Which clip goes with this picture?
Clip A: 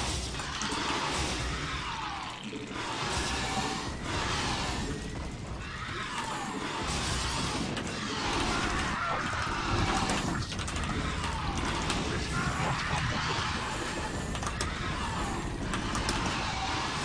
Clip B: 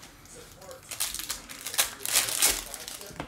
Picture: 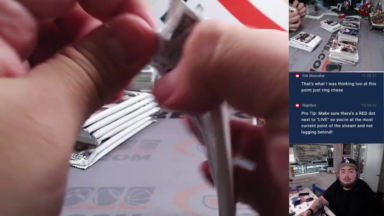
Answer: B